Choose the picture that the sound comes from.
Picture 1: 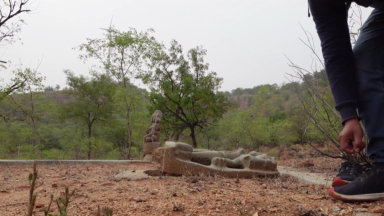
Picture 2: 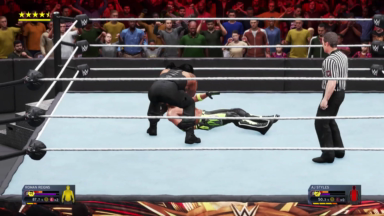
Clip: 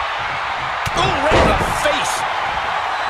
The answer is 2